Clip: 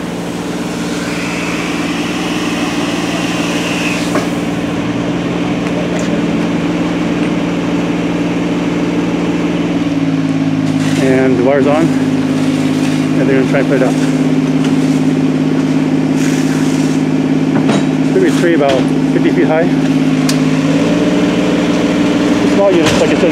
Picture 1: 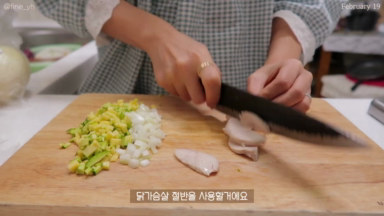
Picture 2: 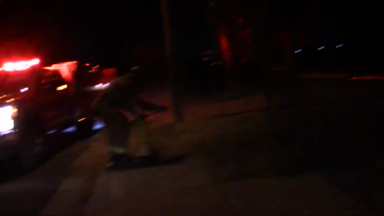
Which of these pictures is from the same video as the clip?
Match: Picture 2